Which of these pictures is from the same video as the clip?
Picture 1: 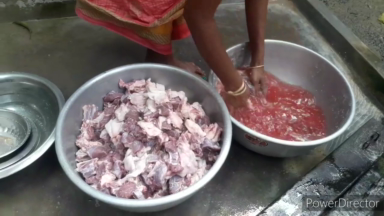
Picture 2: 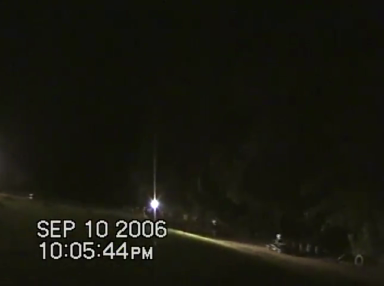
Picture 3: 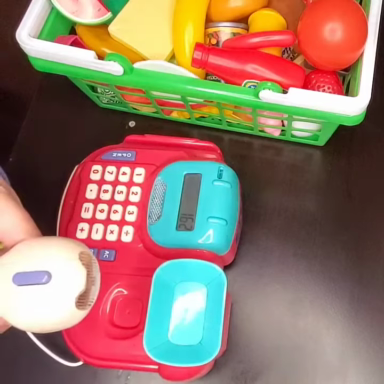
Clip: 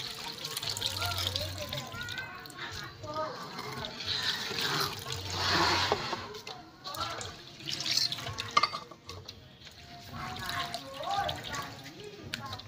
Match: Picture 1